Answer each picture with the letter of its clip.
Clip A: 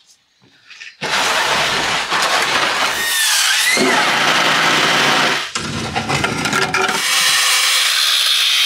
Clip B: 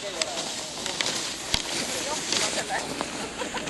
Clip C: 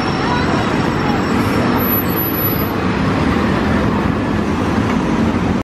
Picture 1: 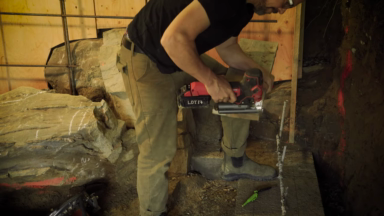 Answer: A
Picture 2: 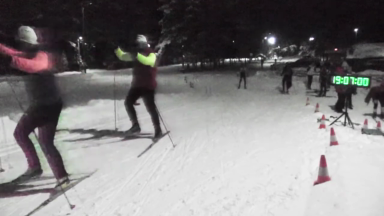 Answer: B